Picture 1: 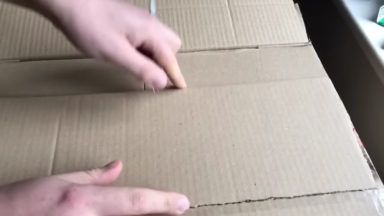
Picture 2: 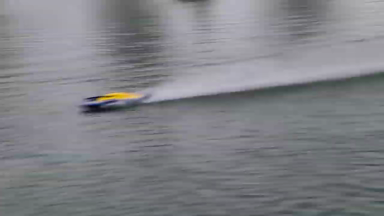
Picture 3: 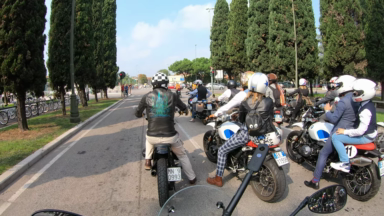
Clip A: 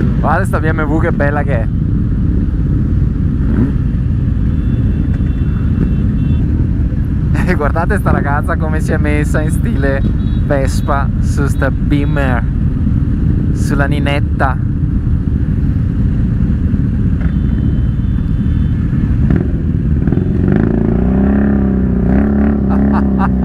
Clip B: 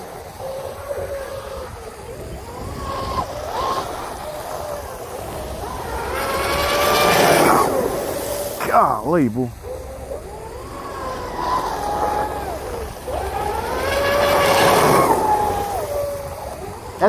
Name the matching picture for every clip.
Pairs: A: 3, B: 2